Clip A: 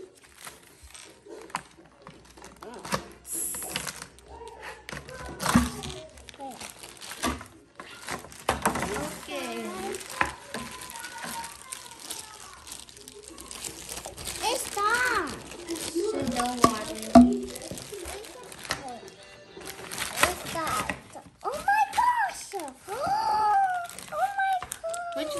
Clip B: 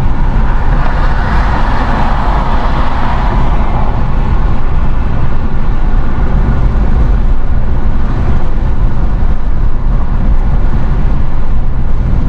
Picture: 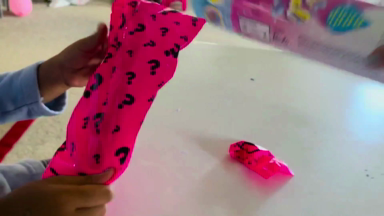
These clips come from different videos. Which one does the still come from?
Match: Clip A